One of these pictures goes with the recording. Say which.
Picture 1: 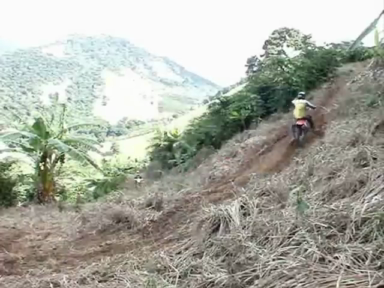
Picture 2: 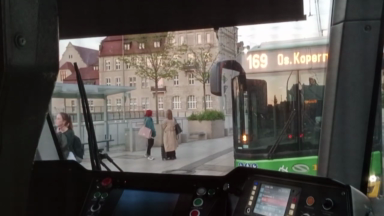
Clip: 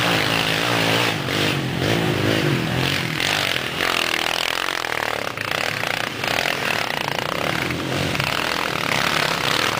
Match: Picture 1